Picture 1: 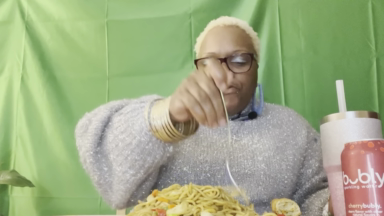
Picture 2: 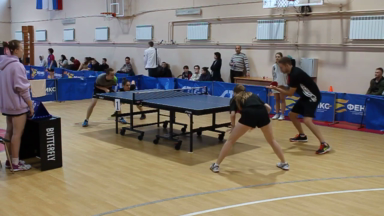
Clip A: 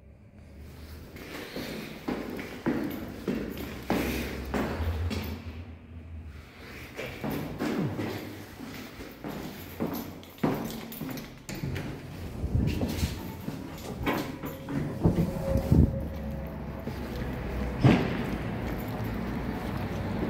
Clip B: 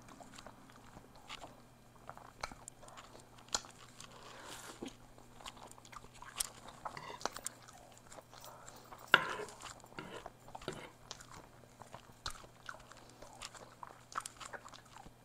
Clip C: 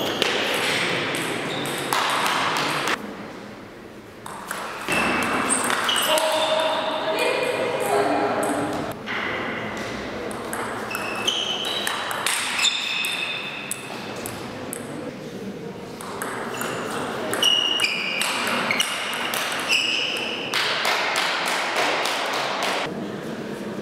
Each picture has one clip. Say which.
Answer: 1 B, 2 C